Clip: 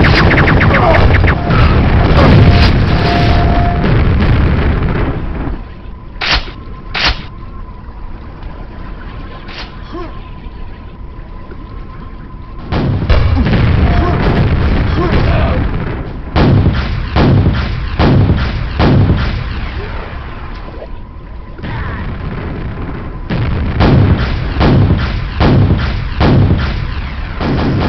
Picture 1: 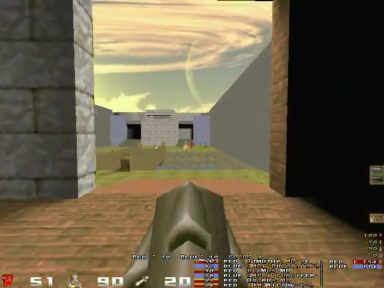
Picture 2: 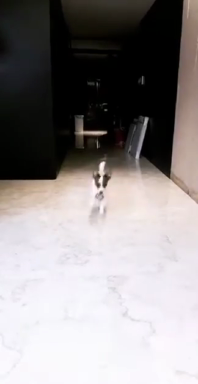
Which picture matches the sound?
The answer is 1